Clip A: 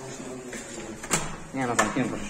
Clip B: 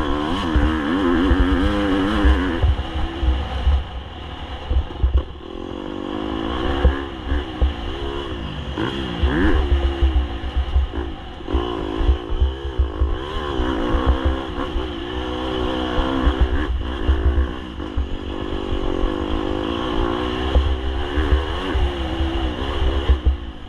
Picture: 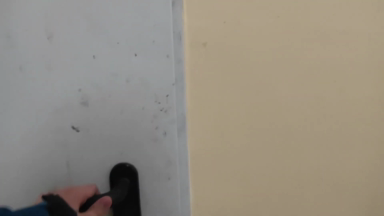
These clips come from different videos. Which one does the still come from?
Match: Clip A